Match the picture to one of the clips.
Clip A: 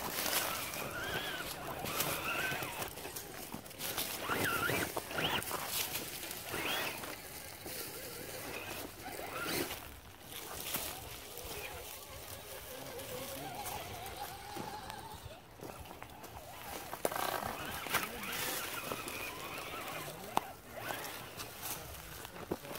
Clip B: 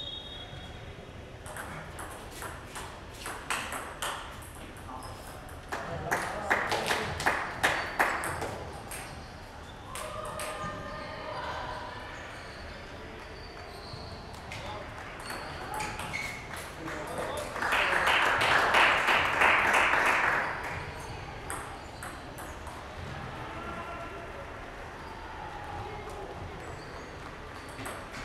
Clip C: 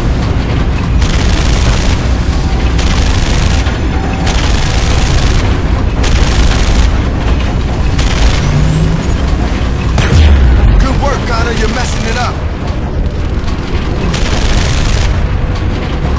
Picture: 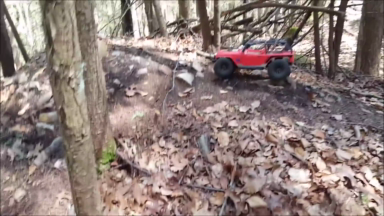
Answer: A